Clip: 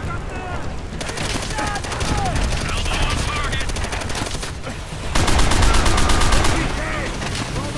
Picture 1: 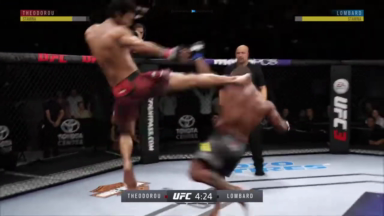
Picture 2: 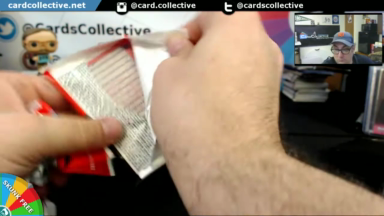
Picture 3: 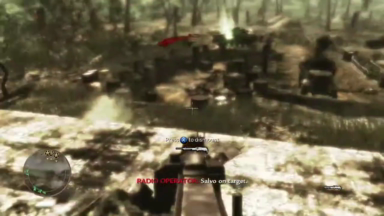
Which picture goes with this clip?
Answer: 3